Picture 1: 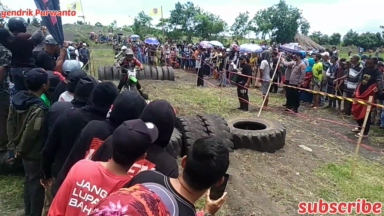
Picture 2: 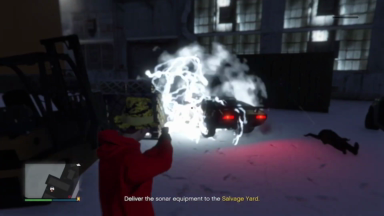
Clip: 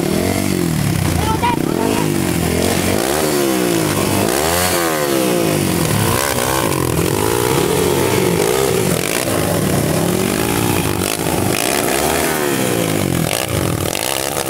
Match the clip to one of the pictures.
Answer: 1